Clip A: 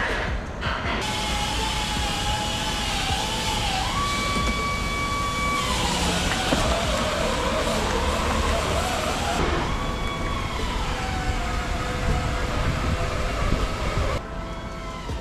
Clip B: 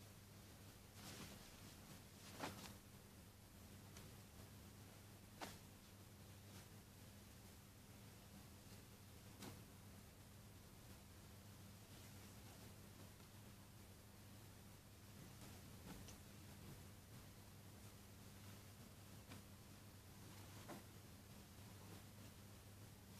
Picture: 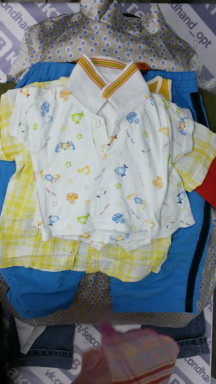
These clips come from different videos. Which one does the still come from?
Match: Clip B